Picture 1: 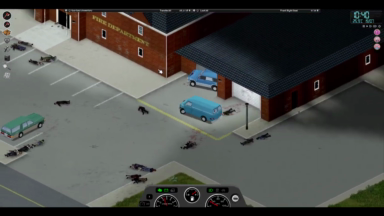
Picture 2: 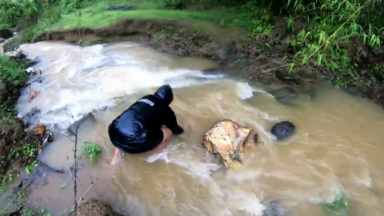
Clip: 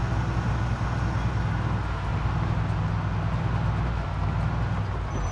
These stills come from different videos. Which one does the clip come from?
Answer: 1